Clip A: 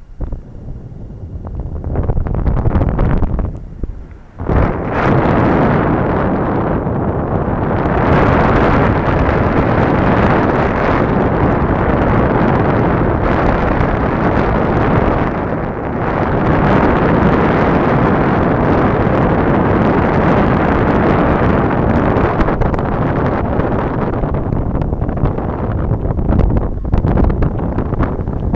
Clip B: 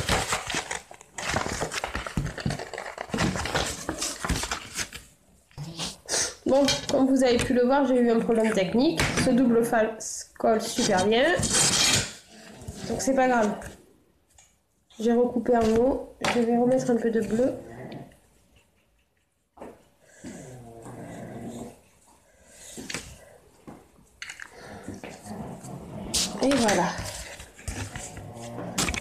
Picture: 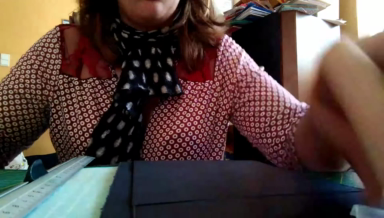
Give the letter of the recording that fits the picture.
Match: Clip B